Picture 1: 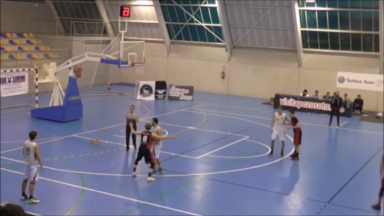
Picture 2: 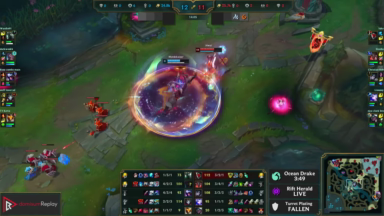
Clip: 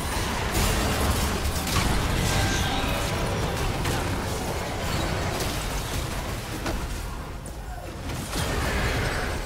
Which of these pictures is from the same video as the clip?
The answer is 2